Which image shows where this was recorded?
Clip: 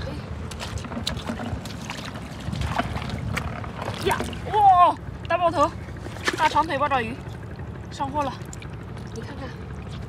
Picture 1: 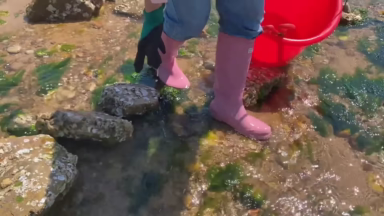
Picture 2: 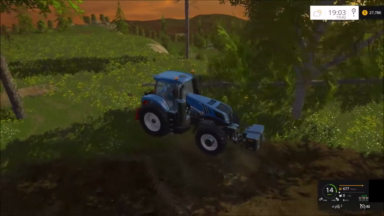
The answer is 1